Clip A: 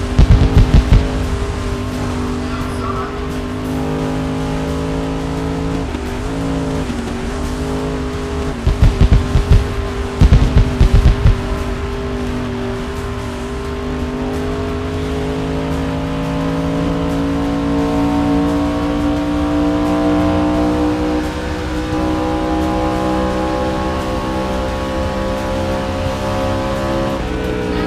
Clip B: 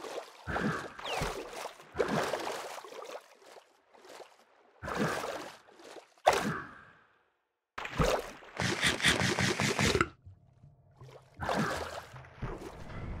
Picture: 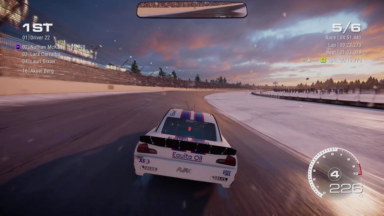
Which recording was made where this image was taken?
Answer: A